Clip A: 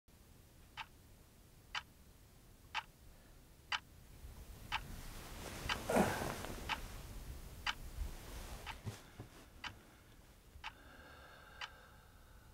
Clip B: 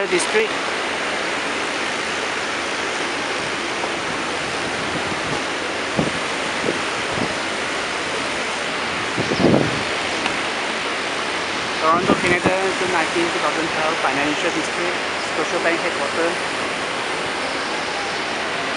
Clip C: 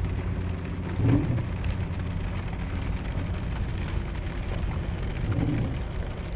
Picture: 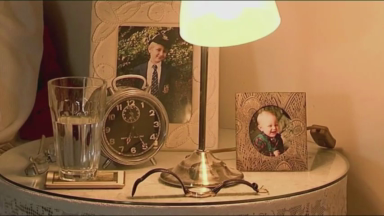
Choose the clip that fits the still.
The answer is A